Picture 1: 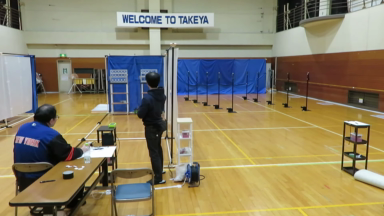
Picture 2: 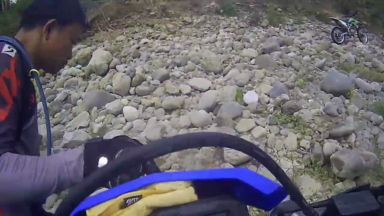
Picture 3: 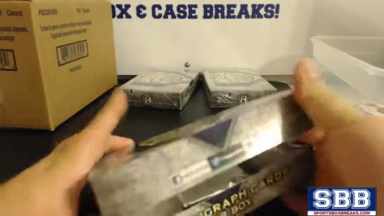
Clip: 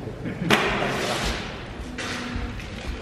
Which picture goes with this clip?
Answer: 1